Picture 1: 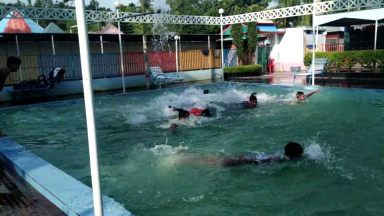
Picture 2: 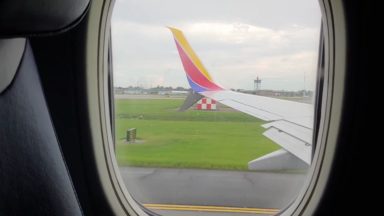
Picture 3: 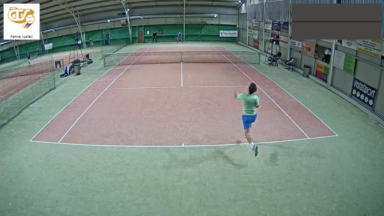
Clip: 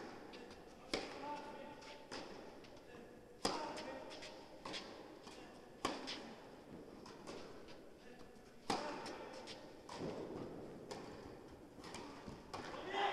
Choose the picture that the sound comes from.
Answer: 3